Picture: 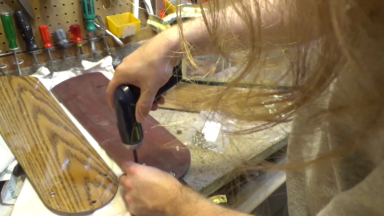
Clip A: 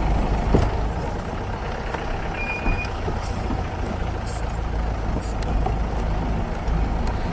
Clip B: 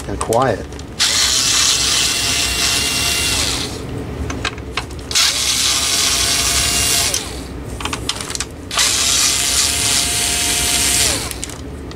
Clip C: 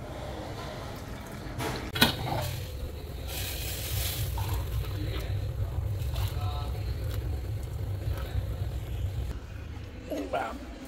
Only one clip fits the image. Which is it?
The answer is B